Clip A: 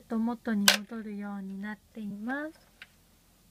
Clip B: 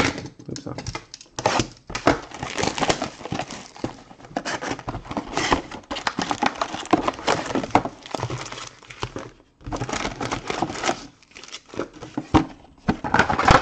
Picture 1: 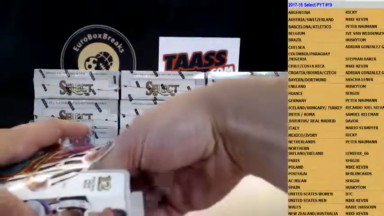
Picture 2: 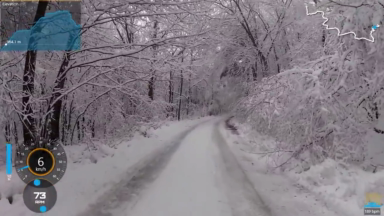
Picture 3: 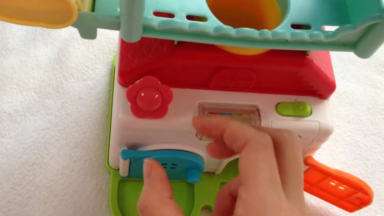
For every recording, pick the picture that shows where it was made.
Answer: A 3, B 1